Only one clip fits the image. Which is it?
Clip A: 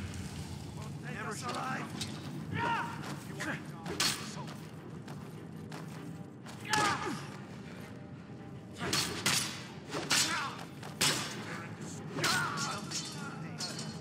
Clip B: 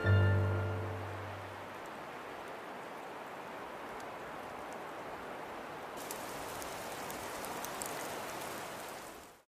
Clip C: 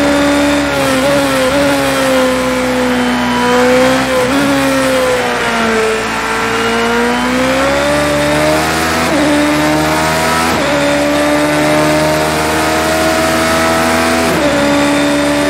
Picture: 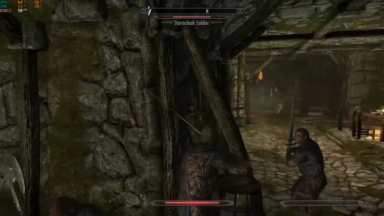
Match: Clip A